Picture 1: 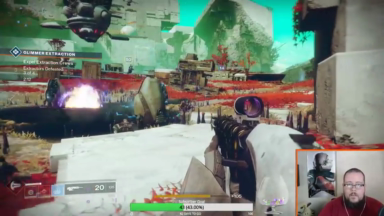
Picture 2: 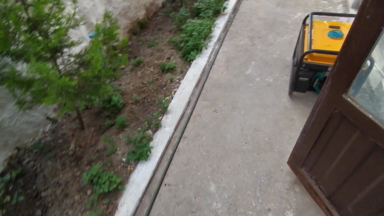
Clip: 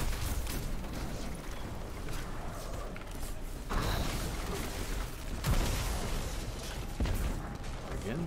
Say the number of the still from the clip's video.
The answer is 1